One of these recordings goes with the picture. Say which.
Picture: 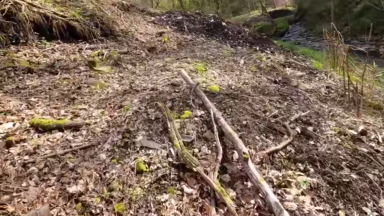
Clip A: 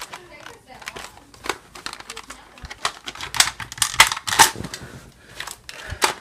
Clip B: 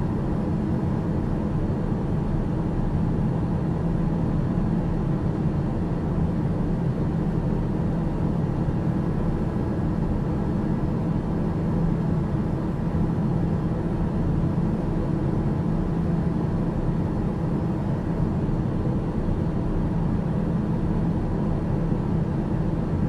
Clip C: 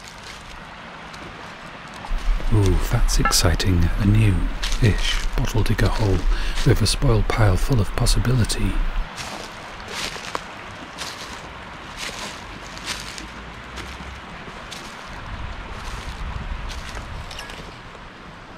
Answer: C